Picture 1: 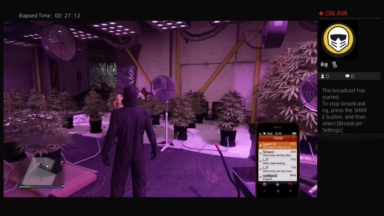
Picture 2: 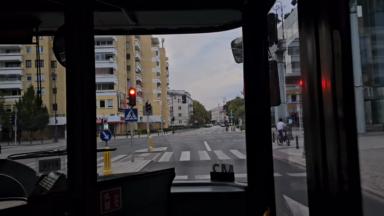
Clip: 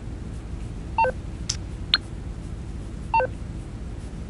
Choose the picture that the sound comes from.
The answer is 1